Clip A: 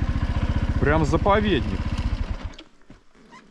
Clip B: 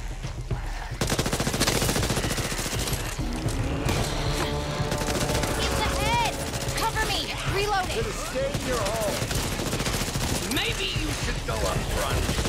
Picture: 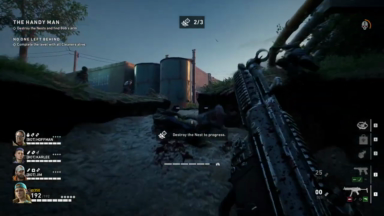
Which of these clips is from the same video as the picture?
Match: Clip B